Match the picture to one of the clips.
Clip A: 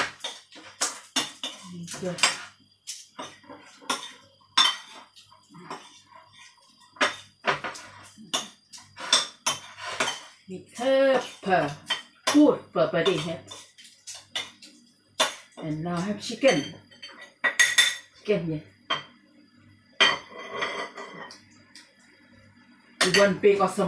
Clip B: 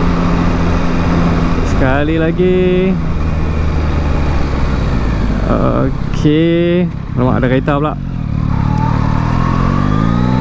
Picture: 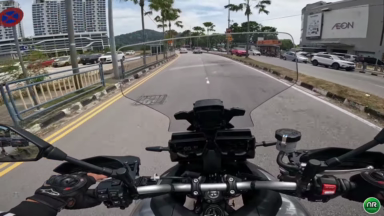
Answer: B